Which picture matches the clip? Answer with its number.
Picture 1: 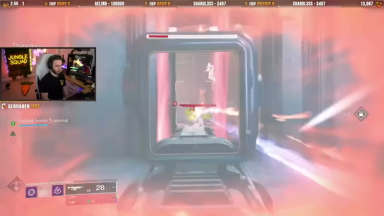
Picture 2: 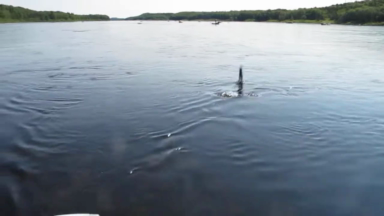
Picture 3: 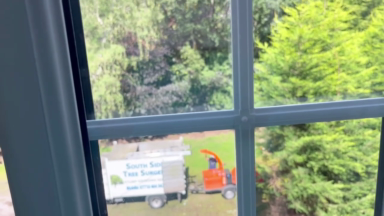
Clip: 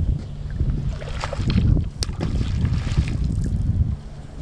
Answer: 2